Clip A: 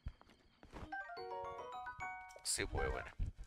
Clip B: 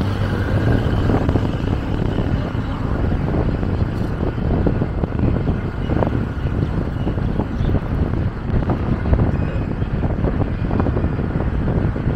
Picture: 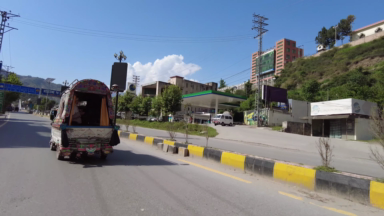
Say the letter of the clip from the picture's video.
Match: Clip B